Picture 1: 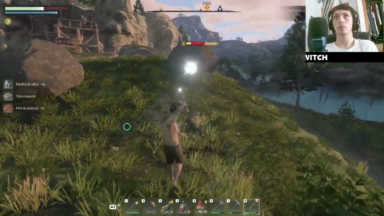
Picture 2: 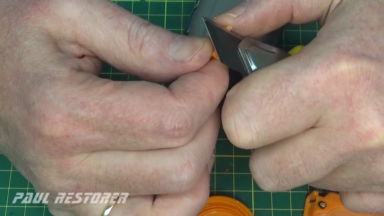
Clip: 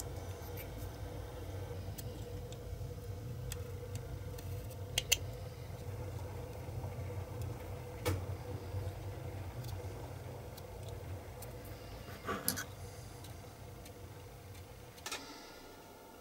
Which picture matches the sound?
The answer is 2